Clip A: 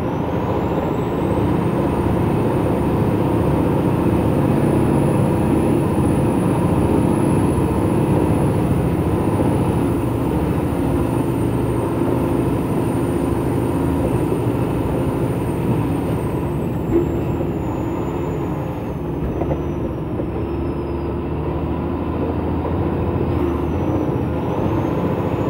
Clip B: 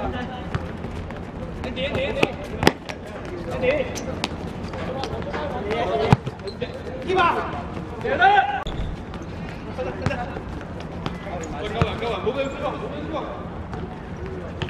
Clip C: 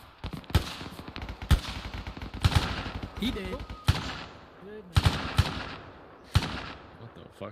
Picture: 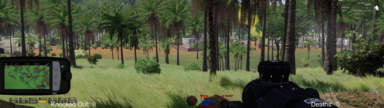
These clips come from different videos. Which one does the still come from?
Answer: C